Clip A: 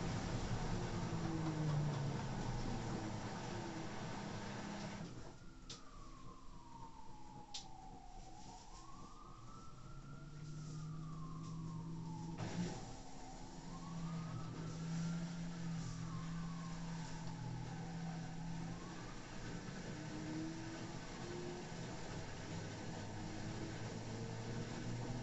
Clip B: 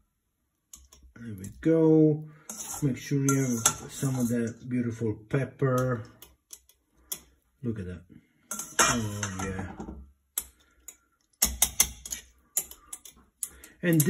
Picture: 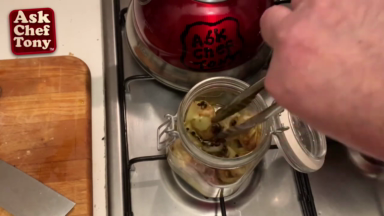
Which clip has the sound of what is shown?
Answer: B